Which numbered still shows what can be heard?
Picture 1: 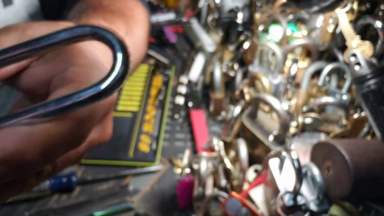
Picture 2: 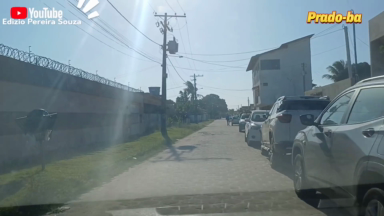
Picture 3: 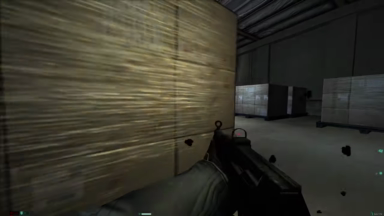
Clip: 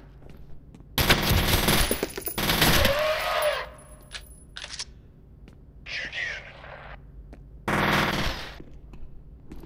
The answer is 3